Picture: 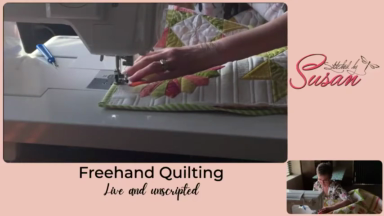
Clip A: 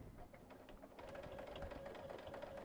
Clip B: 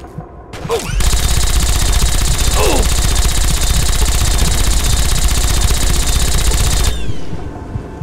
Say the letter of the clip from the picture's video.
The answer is A